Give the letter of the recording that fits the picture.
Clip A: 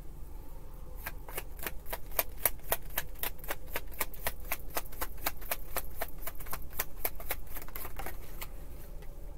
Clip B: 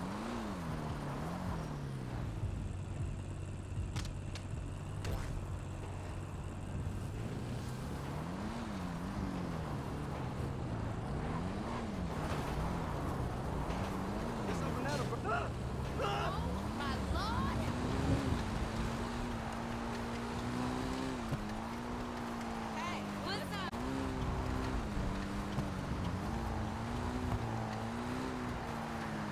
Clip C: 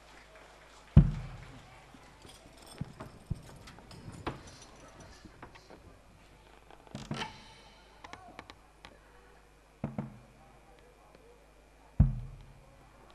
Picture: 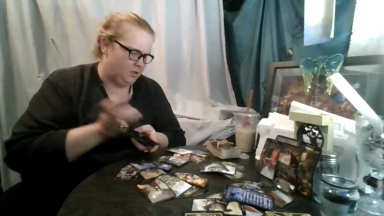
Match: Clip A